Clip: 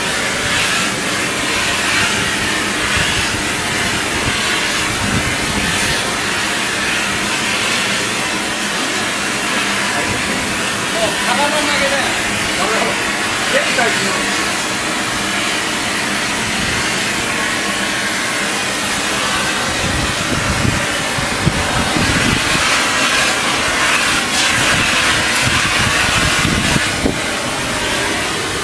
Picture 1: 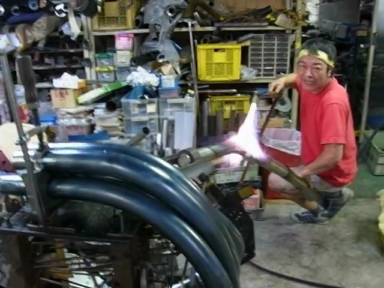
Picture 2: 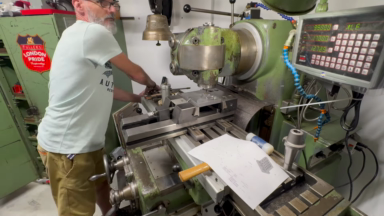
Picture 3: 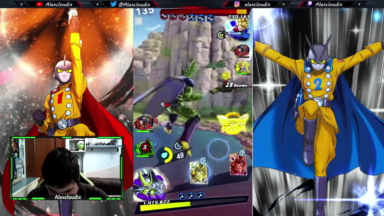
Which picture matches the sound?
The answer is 1